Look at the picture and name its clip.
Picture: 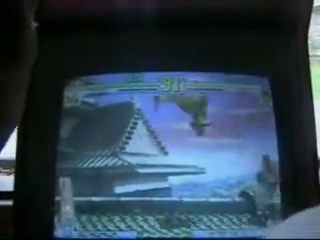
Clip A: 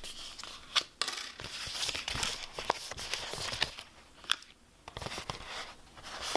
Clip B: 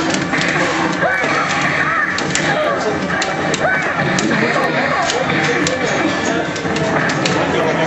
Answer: B